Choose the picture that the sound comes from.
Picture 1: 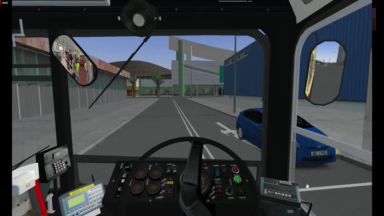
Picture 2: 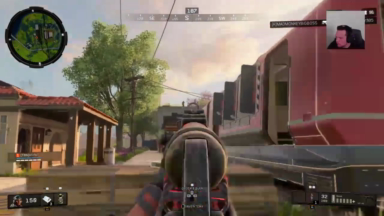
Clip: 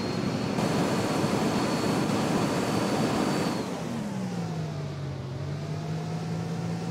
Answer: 1